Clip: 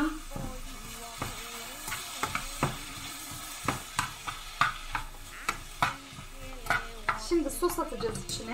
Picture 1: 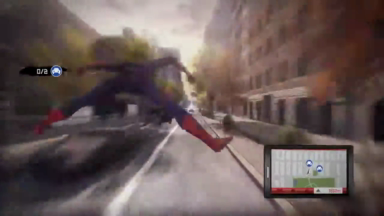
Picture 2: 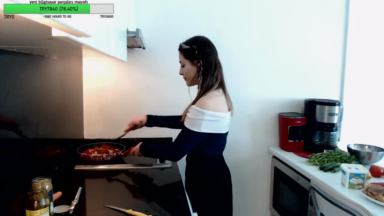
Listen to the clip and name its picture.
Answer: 2